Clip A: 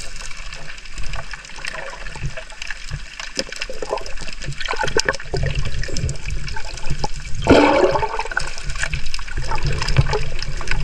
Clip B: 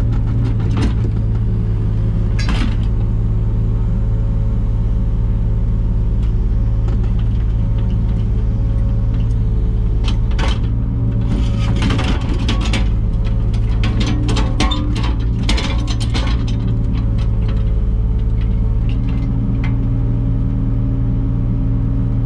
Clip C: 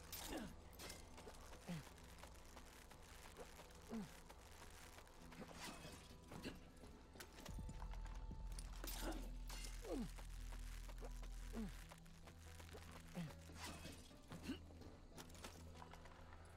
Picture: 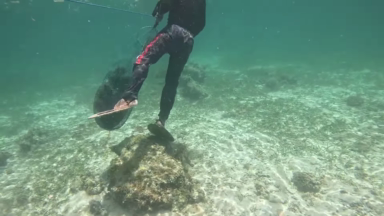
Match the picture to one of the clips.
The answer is A